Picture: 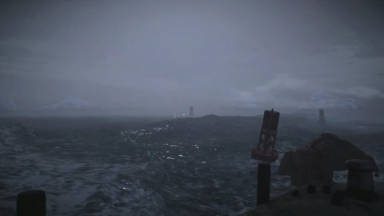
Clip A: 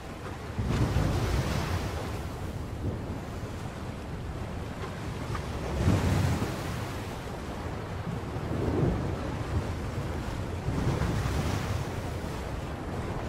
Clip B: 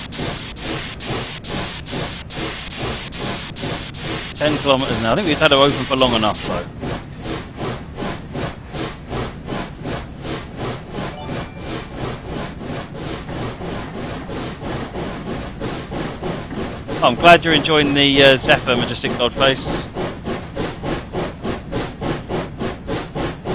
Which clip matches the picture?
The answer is A